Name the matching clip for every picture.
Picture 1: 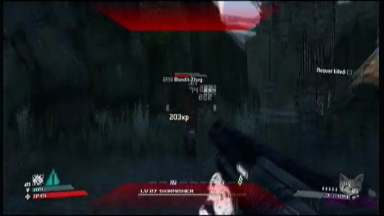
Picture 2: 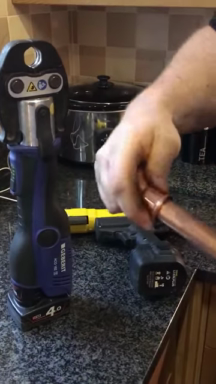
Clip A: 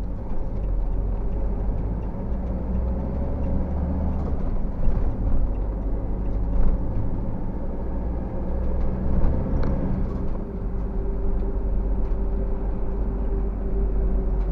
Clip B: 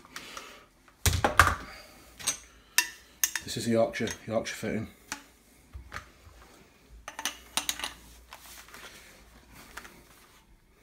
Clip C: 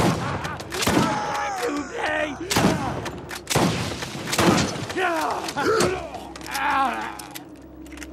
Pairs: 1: C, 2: B